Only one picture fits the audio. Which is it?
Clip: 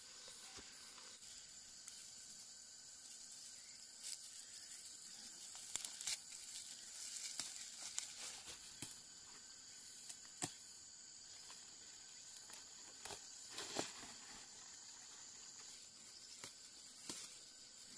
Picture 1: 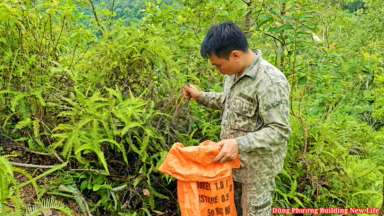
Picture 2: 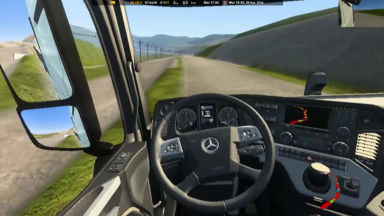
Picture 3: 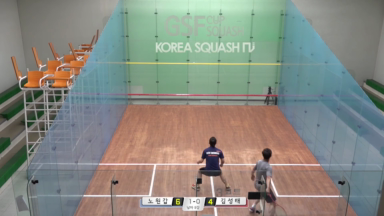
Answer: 1